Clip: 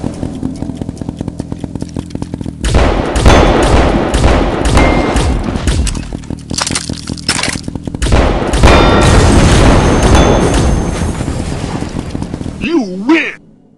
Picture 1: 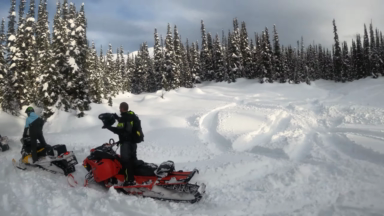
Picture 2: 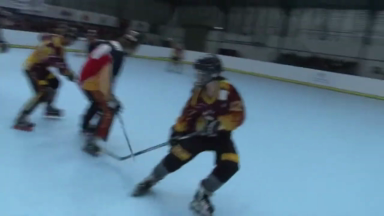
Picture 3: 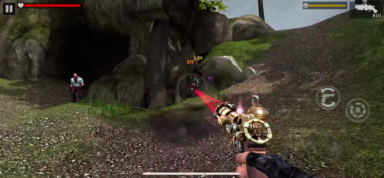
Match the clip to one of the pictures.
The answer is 3